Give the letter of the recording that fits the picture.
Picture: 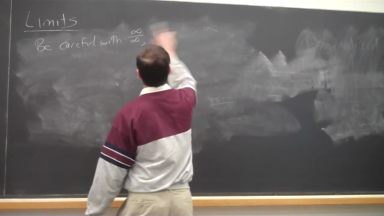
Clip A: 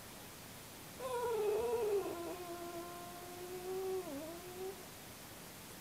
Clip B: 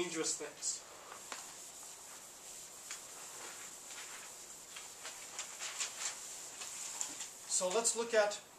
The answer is B